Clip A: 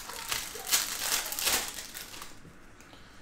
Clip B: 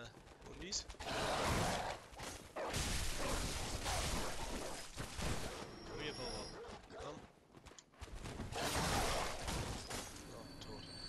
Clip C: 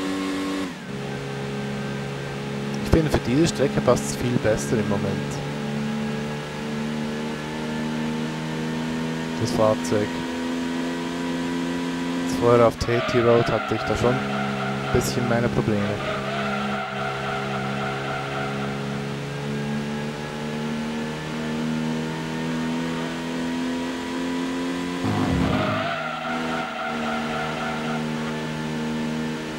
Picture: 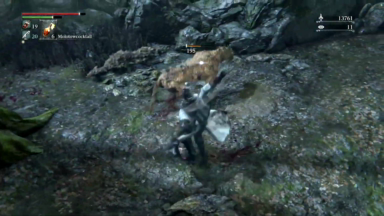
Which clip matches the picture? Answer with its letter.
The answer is B